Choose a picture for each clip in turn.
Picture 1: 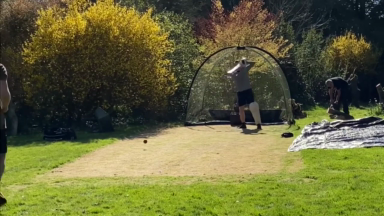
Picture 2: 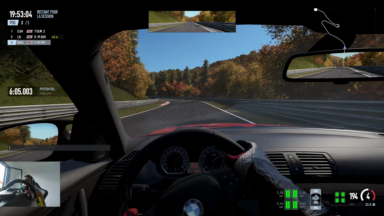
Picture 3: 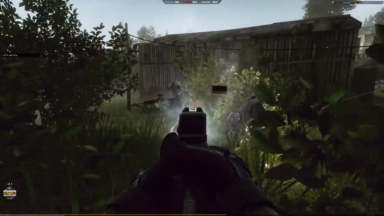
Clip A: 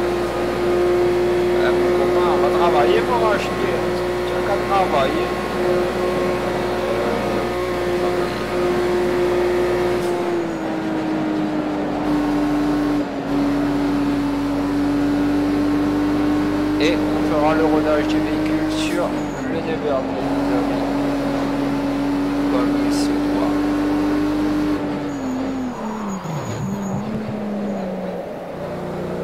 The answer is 2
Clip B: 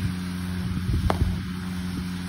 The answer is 1